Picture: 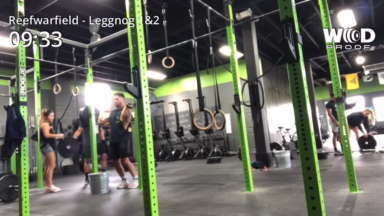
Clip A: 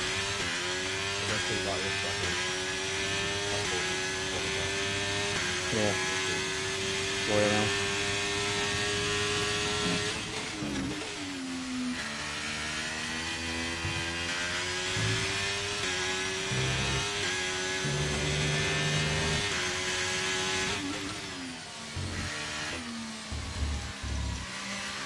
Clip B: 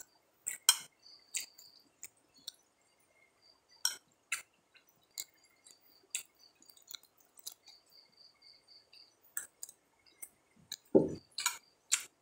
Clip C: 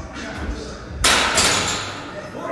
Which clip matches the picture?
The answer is C